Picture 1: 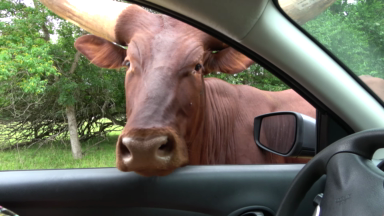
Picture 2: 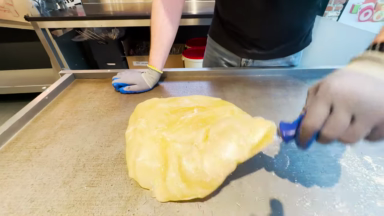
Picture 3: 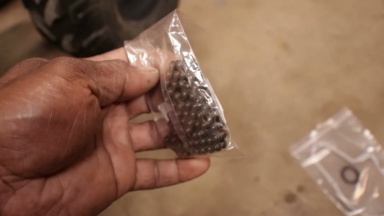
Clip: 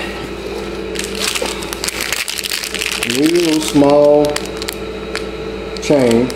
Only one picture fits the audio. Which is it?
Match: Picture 3